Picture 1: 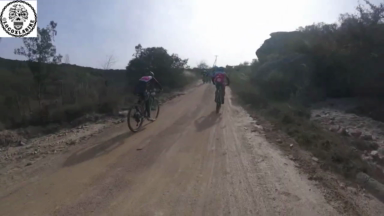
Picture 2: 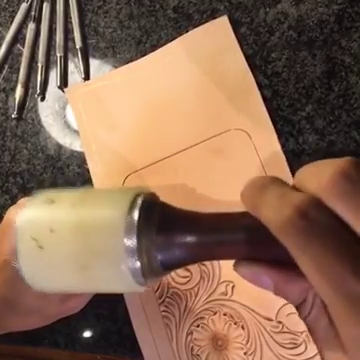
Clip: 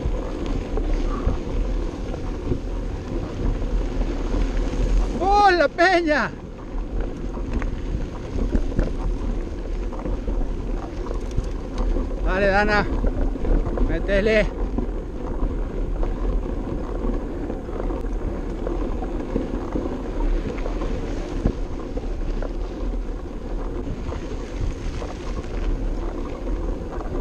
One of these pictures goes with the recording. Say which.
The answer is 1